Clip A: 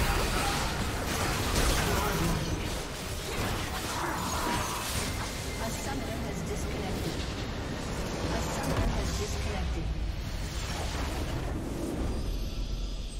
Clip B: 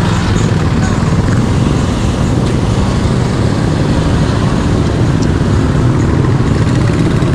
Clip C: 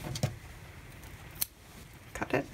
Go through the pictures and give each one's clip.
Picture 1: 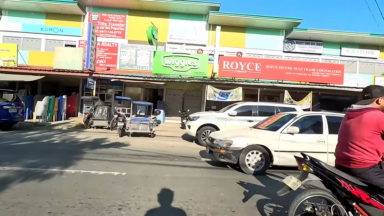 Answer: B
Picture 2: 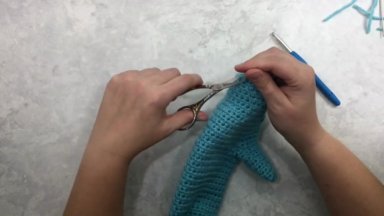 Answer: C